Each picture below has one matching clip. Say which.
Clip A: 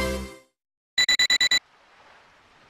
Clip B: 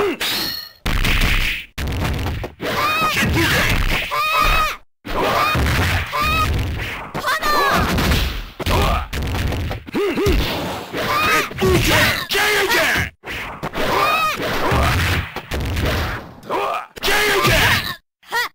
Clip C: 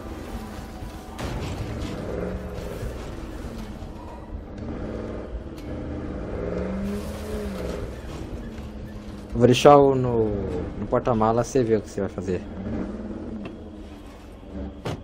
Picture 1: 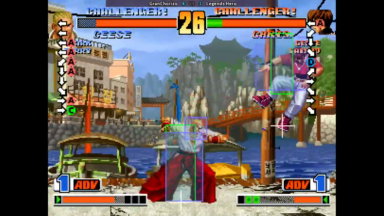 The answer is B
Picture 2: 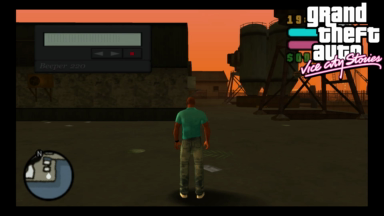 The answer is A